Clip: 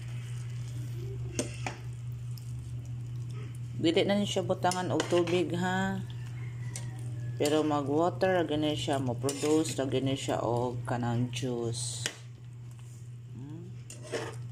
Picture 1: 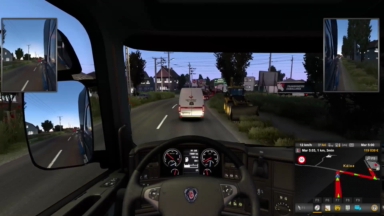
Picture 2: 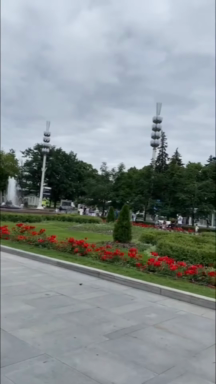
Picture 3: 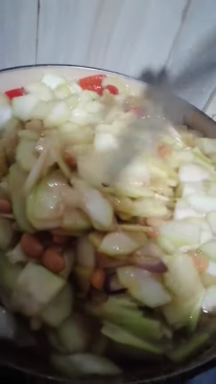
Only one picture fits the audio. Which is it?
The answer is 3